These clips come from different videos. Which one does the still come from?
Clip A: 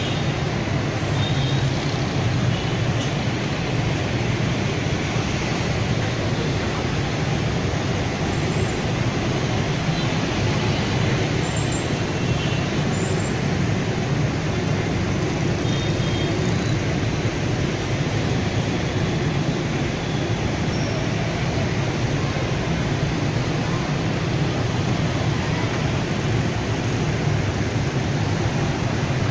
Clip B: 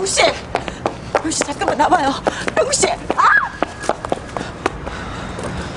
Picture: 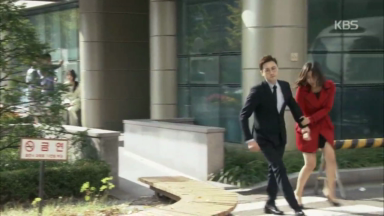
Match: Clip B